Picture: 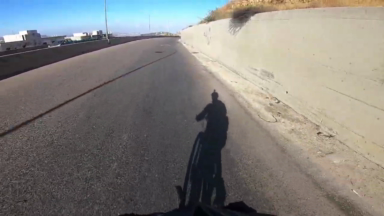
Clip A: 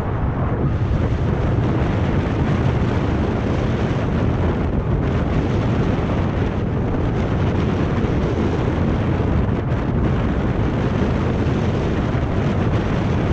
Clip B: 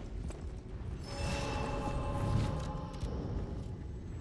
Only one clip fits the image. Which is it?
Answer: A